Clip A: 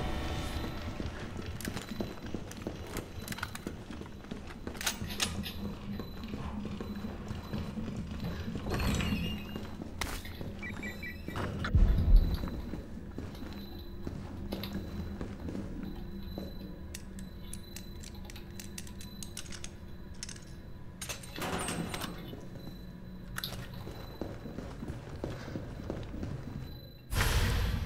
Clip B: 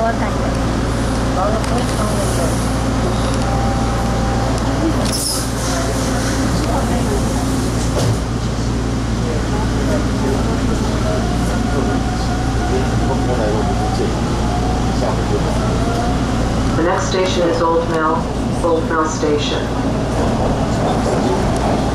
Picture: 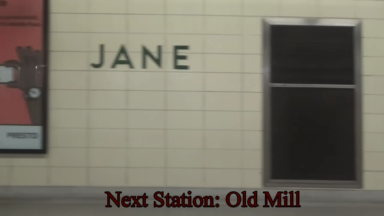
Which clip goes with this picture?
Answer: B